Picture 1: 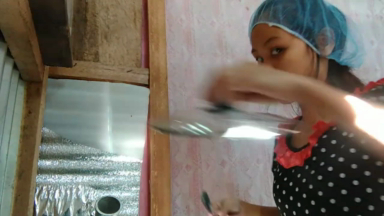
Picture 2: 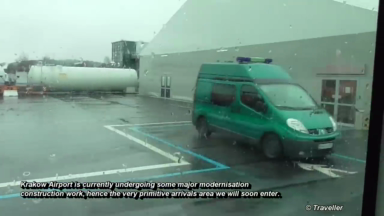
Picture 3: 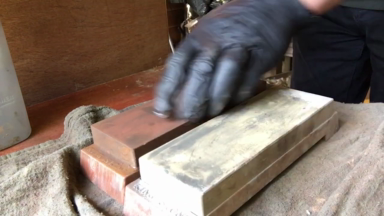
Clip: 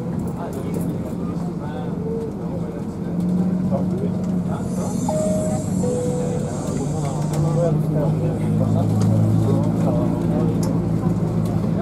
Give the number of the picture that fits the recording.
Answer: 2